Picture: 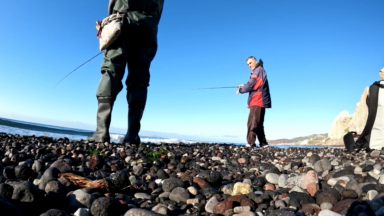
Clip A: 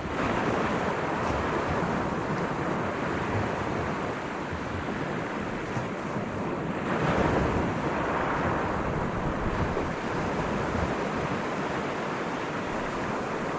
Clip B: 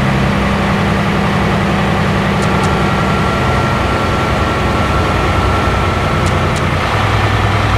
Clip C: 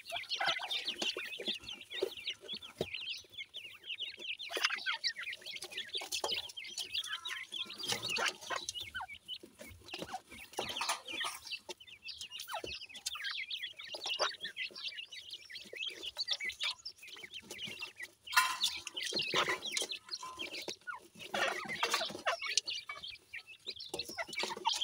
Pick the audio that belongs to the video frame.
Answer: A